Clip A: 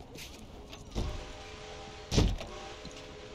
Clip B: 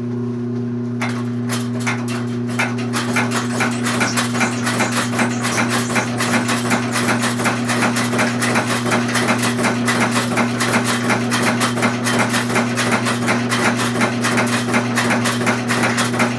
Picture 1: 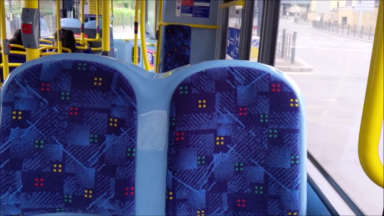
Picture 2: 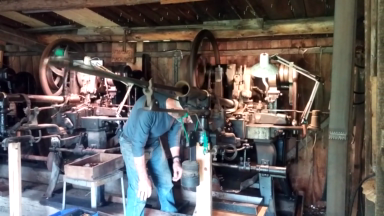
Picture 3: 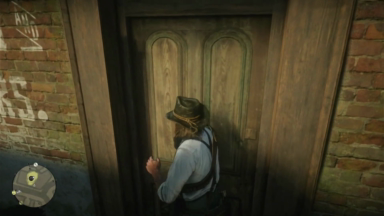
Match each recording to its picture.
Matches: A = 3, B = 2